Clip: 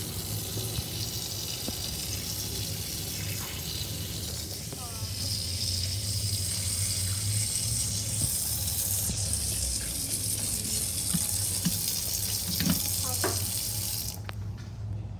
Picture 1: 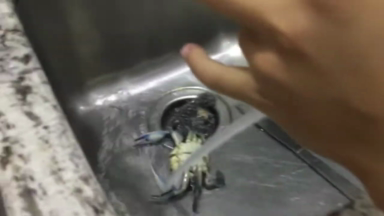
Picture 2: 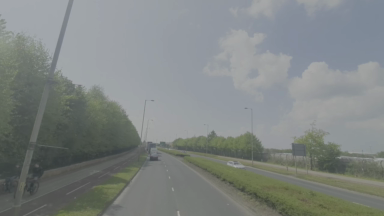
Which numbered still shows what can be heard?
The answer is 1